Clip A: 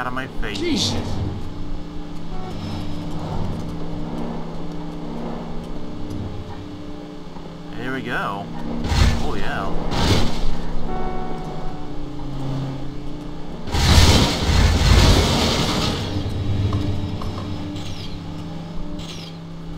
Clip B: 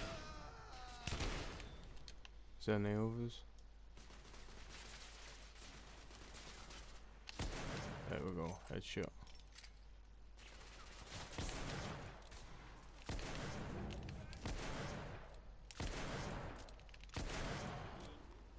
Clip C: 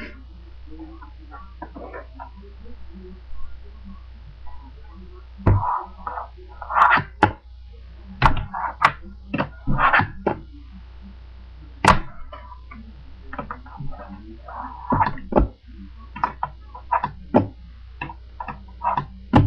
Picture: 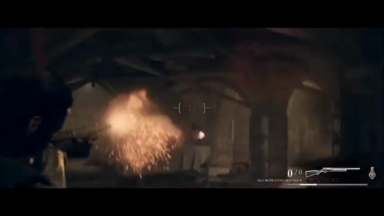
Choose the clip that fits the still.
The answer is B